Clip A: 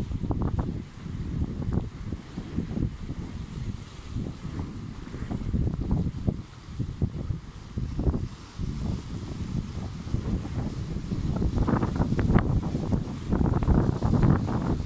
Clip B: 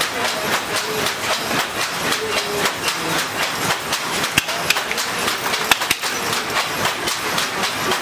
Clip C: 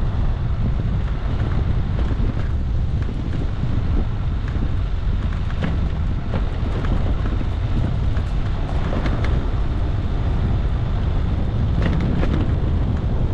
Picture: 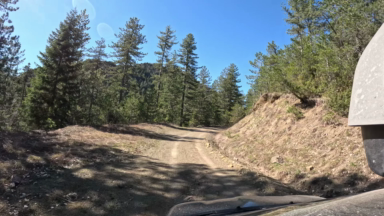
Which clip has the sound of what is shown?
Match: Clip C